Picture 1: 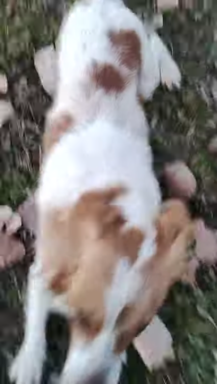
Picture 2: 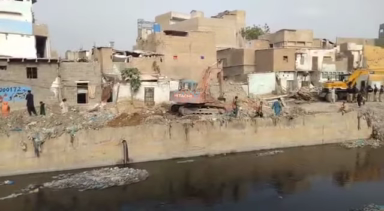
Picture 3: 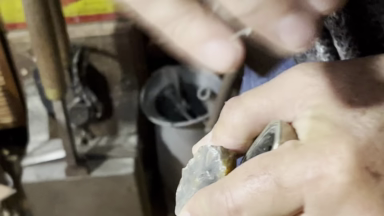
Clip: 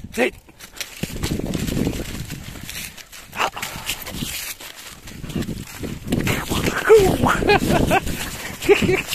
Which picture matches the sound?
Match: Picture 1